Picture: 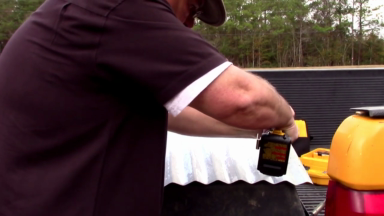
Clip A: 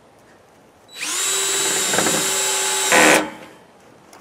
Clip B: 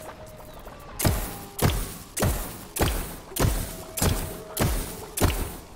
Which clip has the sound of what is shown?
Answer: A